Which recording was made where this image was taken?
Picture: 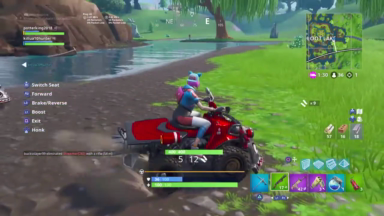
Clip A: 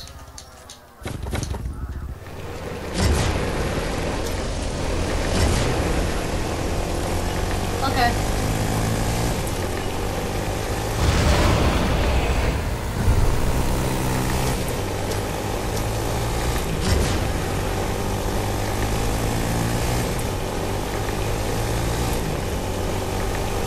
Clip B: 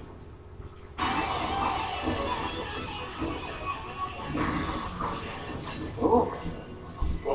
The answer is A